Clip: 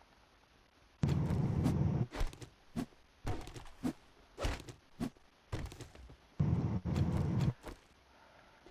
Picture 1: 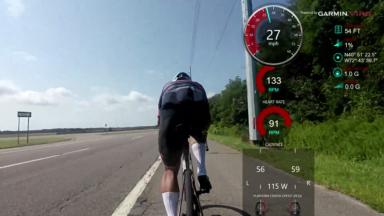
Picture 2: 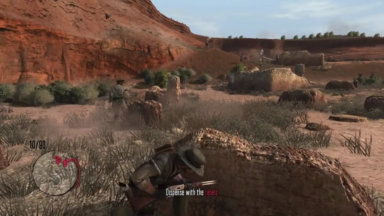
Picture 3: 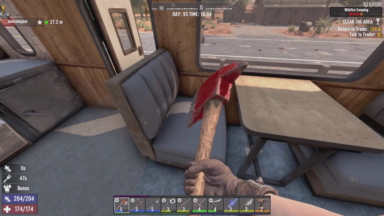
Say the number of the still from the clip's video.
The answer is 3